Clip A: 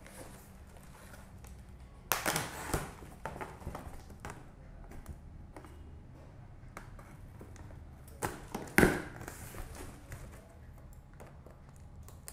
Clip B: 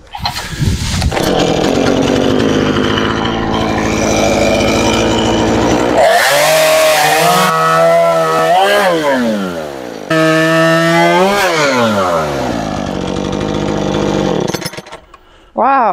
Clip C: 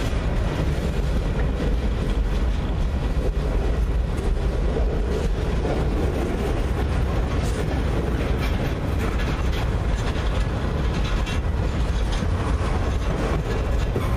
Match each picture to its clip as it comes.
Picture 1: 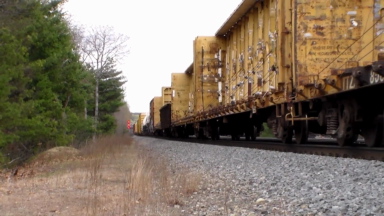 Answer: C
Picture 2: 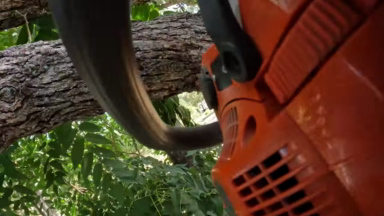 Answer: B